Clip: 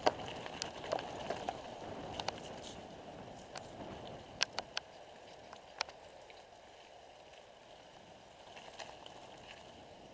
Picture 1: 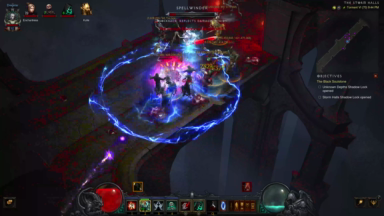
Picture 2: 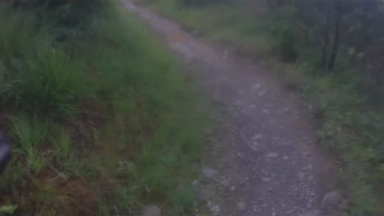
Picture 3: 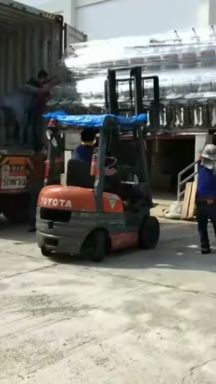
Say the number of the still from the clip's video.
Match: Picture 2